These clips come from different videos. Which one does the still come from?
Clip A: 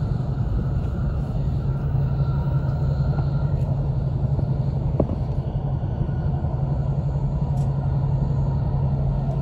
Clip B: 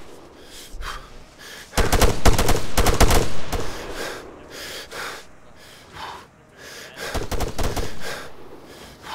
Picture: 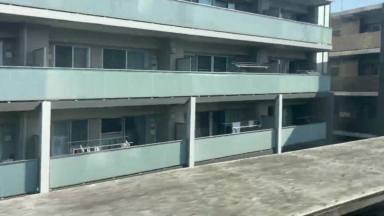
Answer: A